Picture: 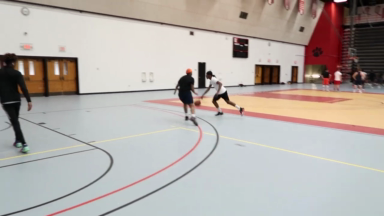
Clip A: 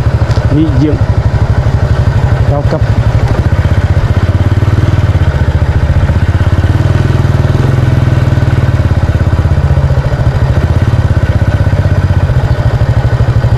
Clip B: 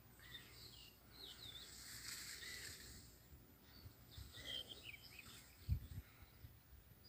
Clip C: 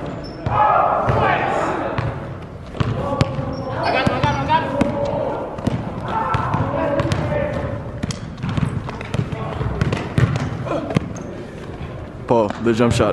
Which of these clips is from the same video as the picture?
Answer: C